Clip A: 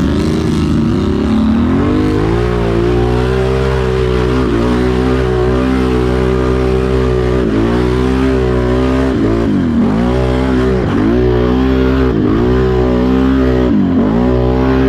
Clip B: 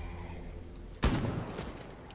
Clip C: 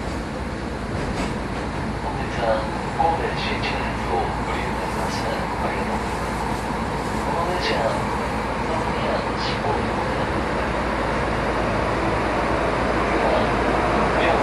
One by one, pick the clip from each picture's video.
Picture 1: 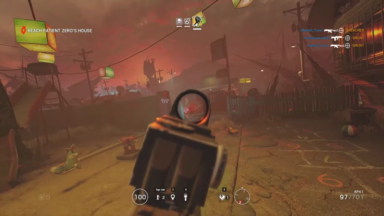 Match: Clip B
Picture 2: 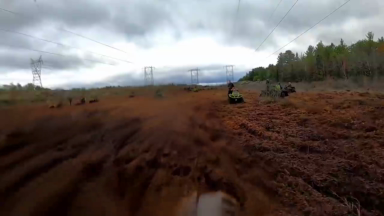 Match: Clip A